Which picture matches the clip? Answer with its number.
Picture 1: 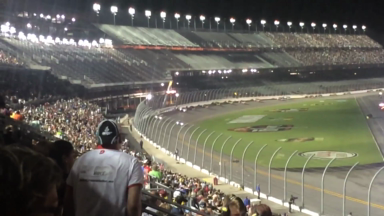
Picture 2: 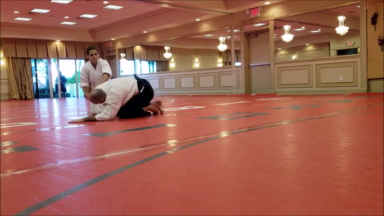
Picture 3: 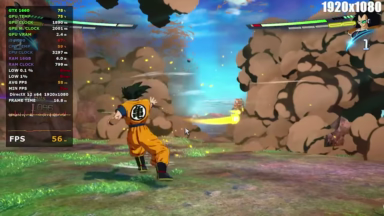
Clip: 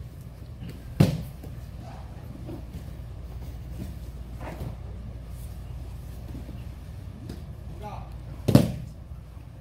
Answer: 2